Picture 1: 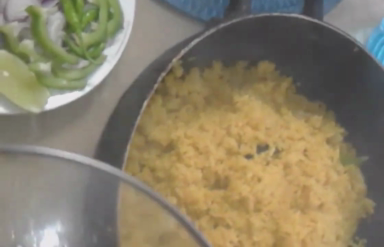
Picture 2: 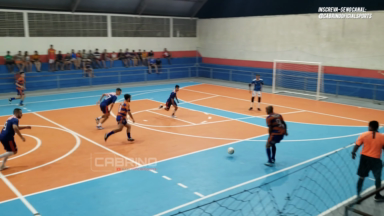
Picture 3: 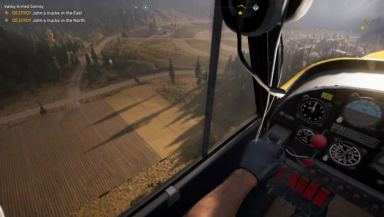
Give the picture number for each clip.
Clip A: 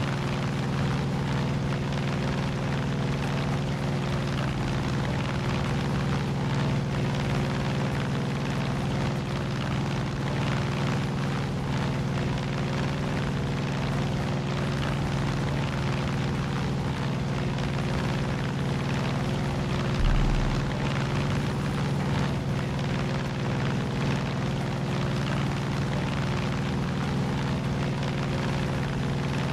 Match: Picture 3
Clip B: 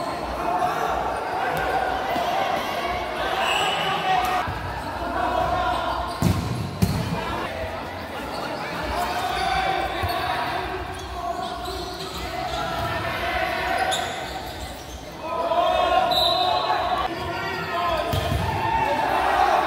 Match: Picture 2